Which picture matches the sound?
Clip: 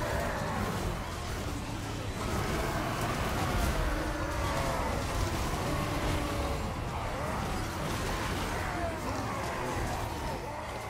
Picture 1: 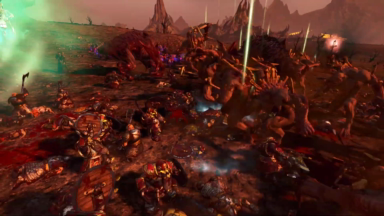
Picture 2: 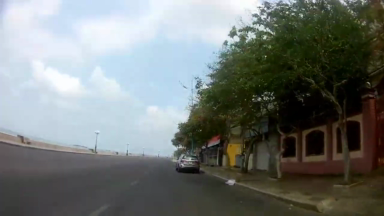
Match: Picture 1